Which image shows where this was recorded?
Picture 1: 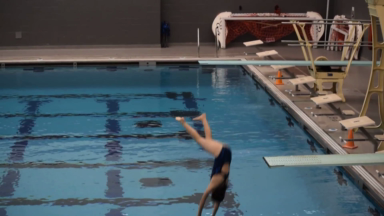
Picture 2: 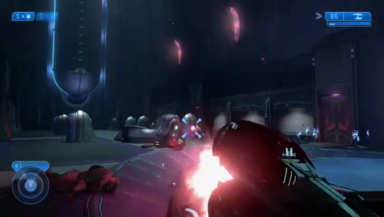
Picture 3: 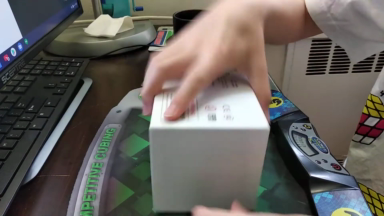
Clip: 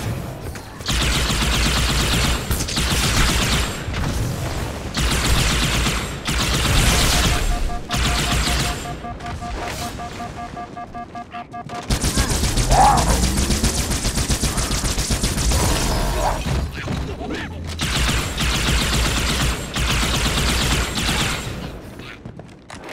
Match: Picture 2